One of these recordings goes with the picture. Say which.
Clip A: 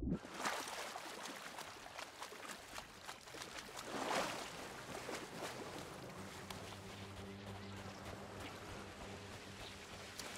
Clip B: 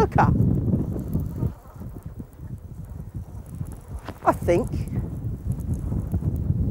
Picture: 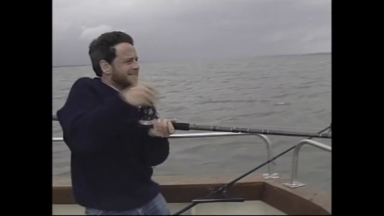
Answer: B